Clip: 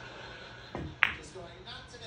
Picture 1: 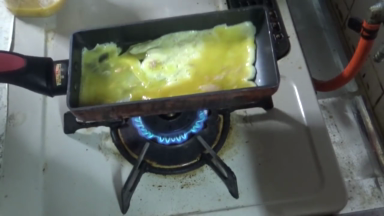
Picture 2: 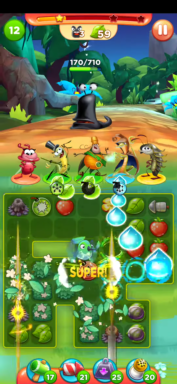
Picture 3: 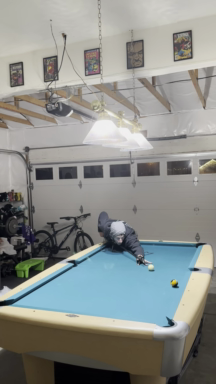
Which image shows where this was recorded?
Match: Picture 3